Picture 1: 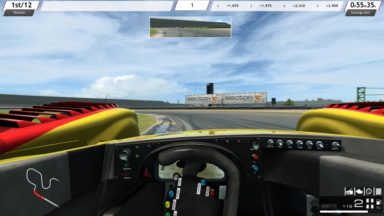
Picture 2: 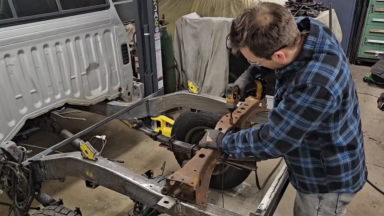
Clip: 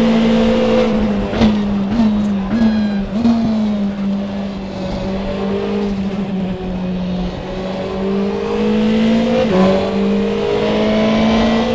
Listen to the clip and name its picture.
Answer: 1